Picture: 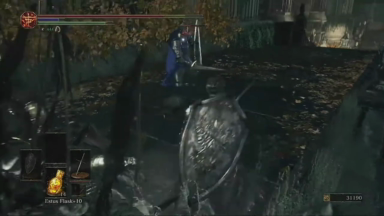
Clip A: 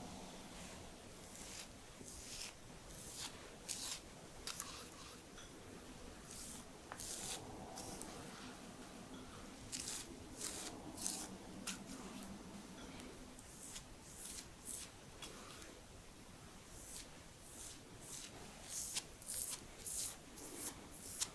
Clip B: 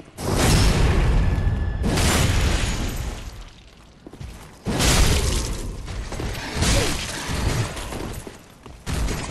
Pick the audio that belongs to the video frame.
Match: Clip B